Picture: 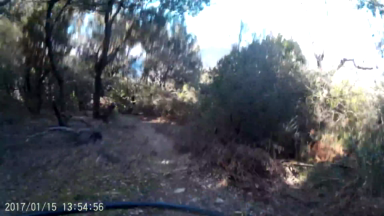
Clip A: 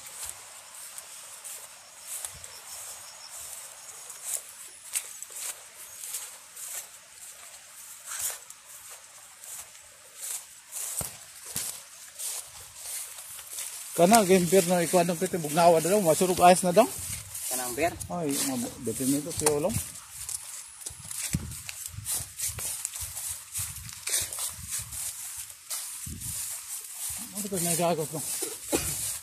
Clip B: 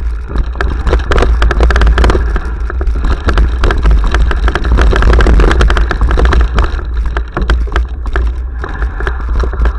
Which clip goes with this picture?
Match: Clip B